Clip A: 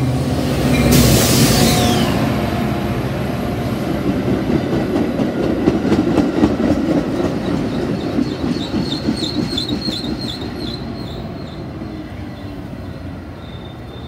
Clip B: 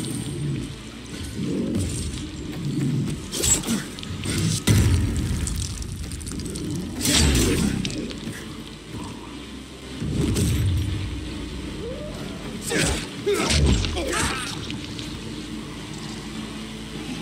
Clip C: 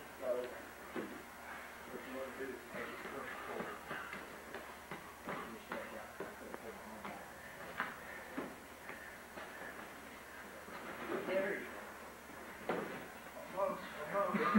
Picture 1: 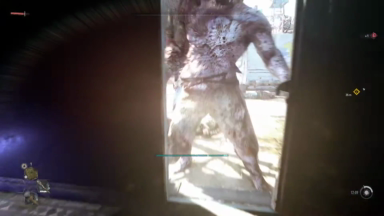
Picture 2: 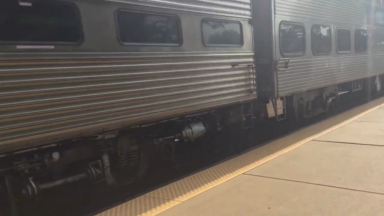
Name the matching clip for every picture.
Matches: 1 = B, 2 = A